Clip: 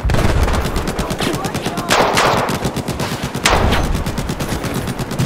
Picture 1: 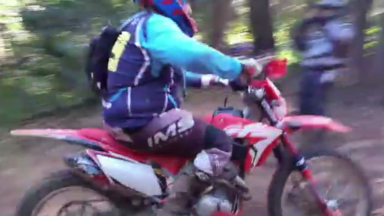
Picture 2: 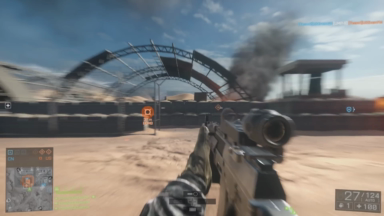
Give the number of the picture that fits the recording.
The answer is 2